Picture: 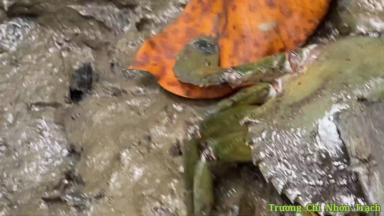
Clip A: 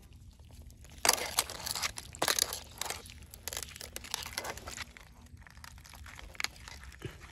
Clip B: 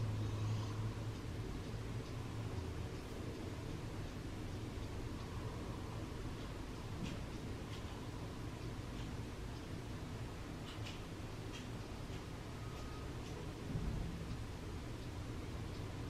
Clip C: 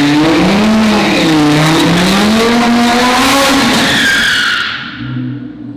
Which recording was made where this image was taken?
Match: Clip A